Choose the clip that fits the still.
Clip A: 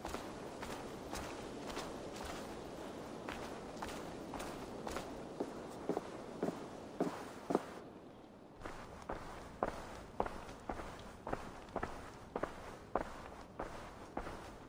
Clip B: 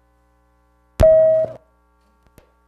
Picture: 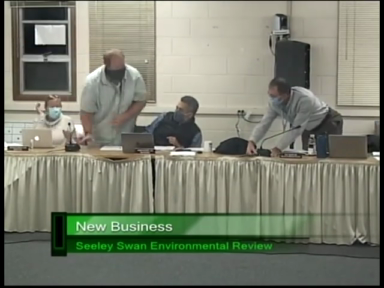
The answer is B